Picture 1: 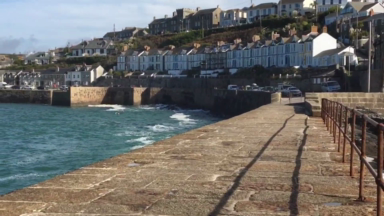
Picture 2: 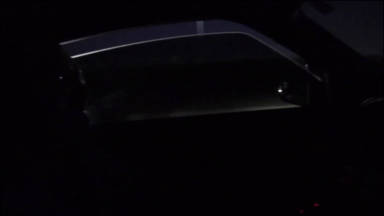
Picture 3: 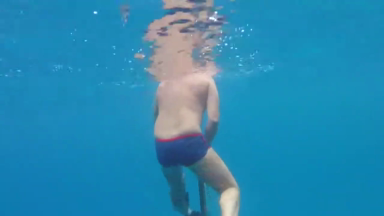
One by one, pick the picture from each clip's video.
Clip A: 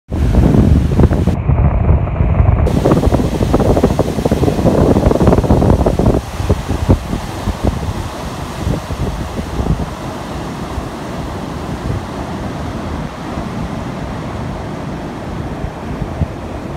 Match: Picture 1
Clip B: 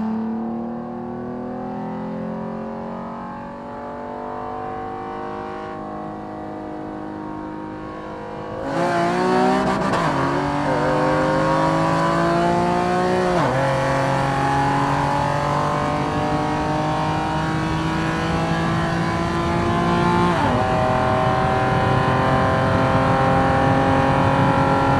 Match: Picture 2